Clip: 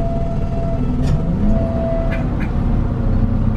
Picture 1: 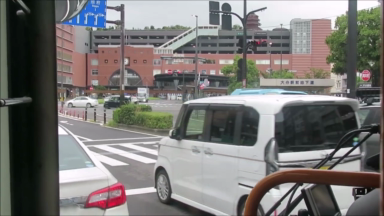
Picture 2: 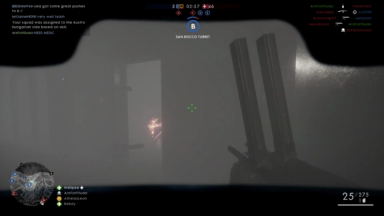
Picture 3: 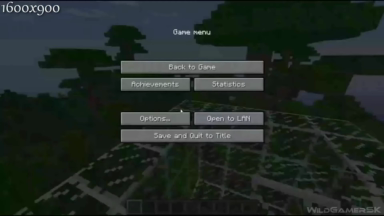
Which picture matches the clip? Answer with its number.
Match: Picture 1